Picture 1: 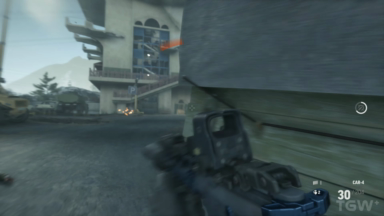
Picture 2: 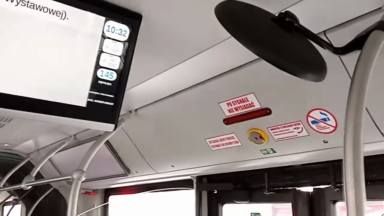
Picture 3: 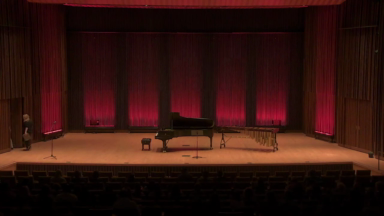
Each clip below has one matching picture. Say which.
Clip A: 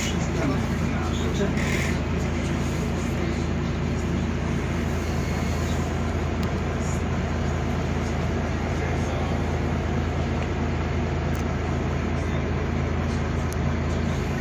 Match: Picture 2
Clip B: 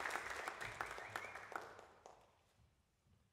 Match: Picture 3